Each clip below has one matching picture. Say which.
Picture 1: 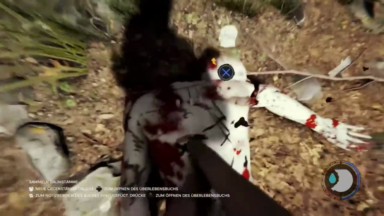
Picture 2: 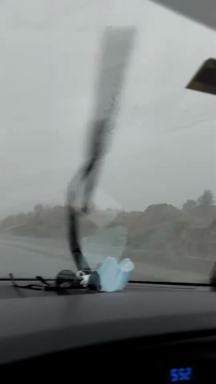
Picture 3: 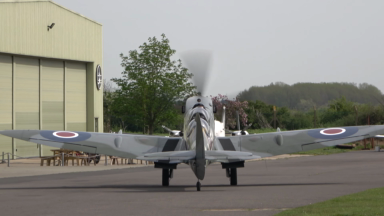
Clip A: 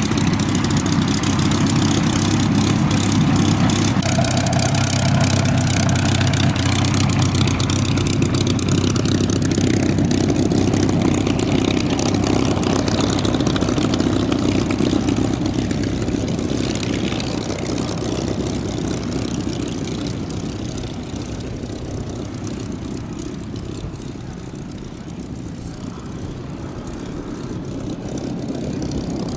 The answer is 3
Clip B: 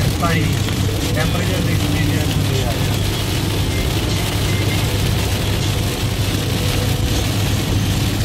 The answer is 2